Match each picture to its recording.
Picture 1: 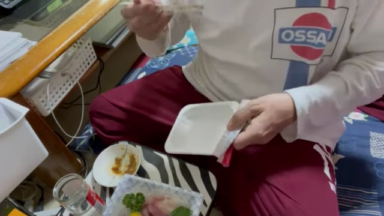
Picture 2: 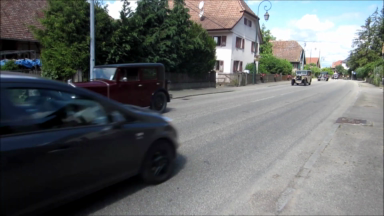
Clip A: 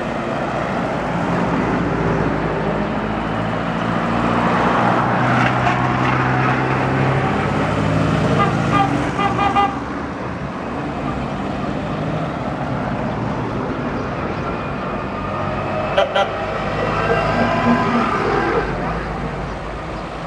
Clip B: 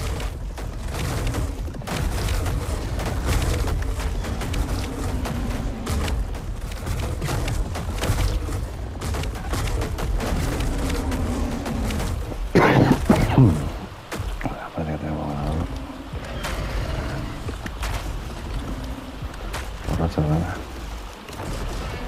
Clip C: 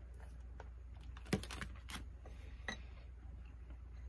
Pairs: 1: C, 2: A